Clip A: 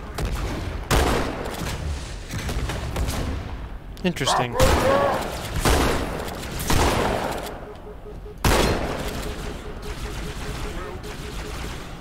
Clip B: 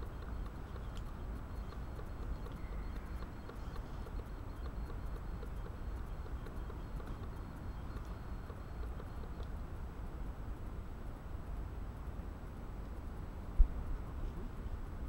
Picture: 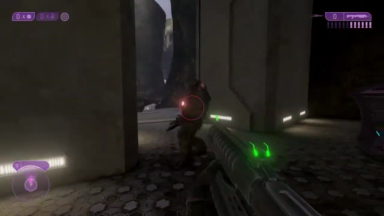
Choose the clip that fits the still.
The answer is A